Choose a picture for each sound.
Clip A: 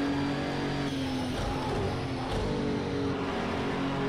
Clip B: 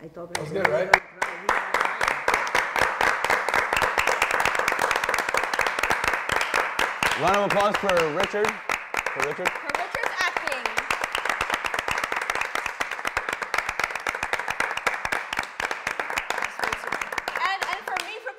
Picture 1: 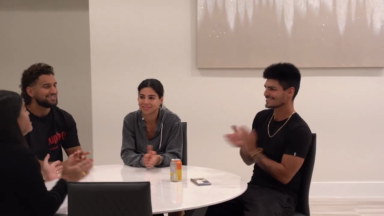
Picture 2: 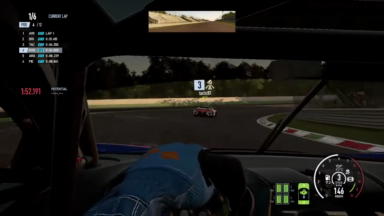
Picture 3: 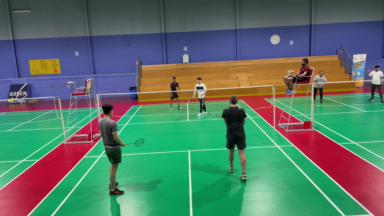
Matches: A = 2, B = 1